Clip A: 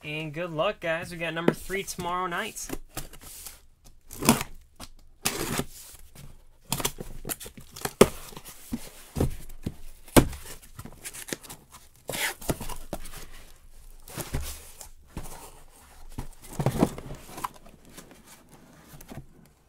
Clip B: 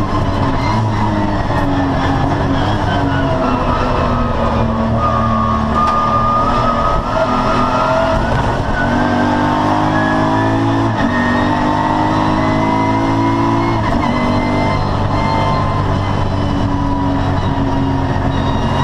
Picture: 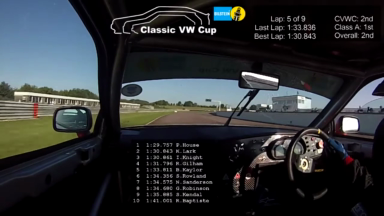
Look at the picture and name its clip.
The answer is B